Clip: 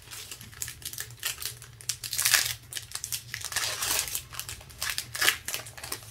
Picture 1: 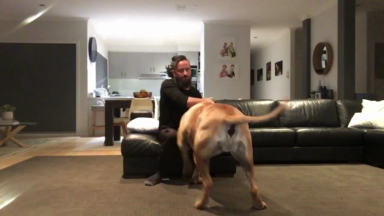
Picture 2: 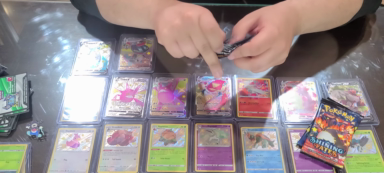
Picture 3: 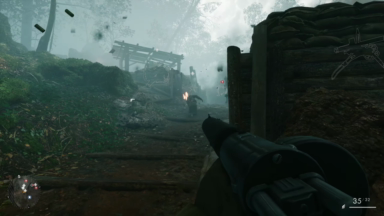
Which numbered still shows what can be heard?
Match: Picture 2